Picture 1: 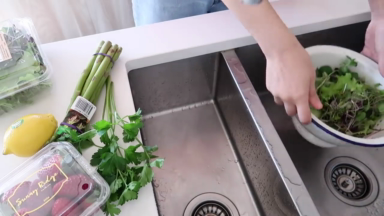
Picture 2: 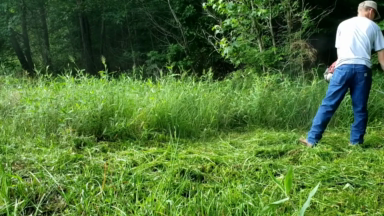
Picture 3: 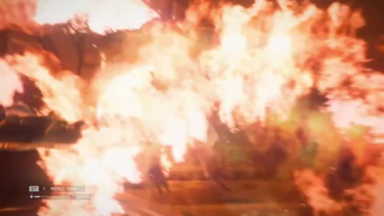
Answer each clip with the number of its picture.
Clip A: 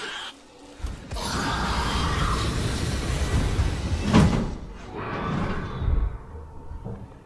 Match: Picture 3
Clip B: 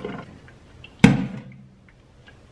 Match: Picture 1